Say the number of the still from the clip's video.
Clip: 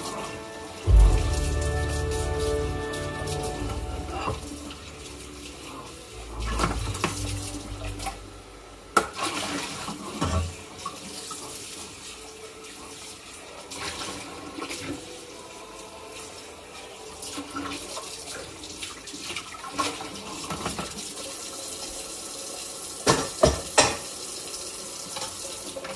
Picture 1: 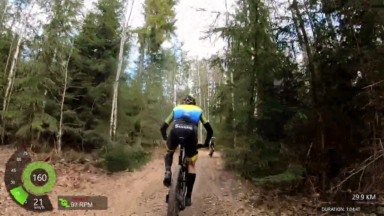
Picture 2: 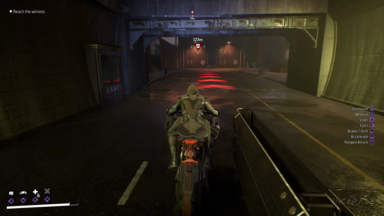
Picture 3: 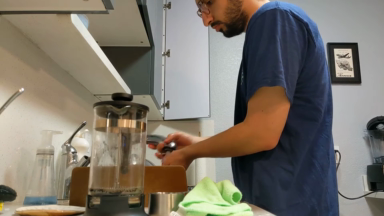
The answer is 3